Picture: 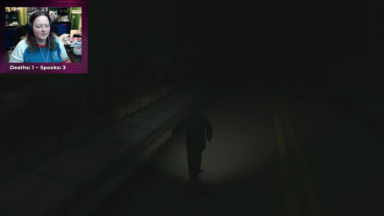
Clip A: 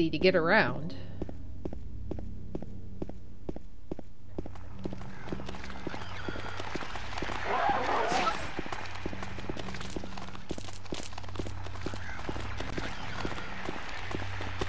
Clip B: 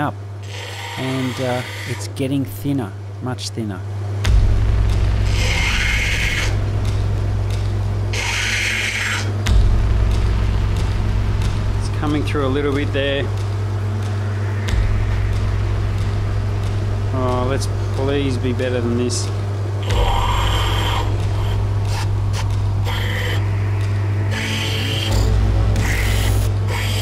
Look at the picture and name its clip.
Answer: A